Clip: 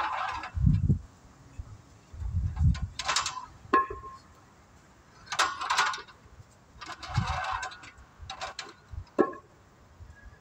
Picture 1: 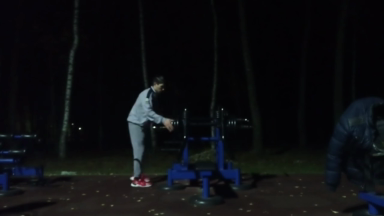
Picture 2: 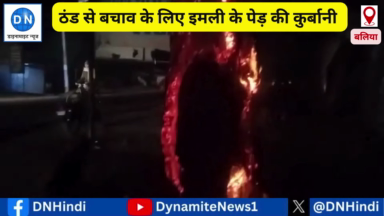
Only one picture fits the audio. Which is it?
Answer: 1